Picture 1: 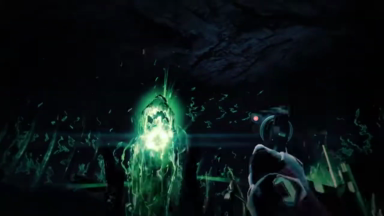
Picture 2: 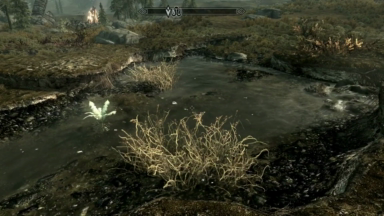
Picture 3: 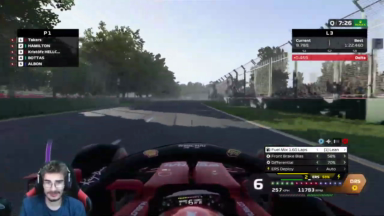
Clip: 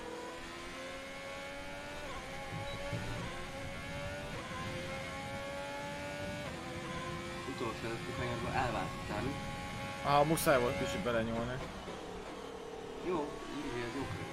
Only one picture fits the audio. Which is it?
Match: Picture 3